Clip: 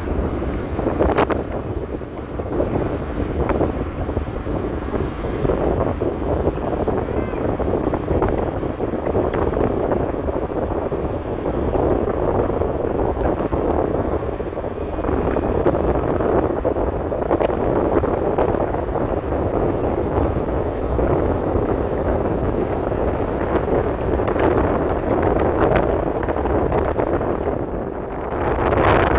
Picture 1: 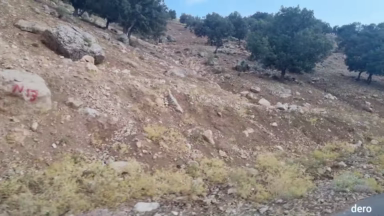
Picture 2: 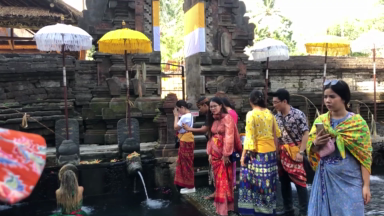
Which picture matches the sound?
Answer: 1